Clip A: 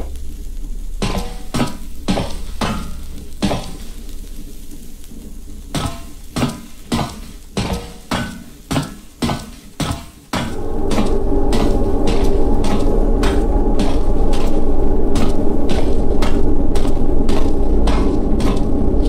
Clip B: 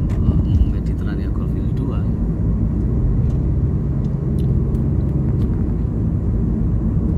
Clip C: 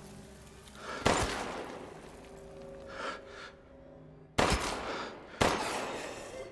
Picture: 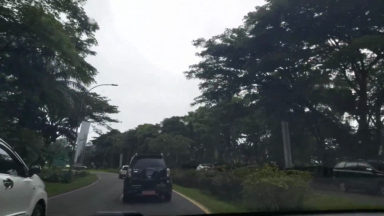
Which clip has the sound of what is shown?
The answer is B